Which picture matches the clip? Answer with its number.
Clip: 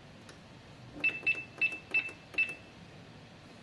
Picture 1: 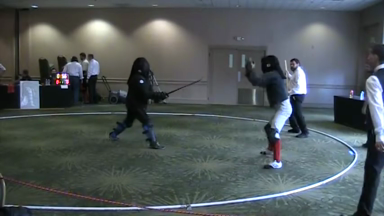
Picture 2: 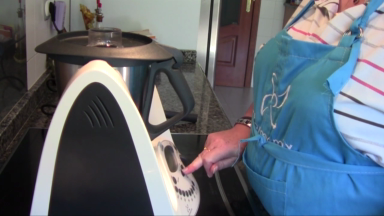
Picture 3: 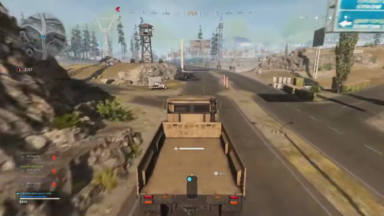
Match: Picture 2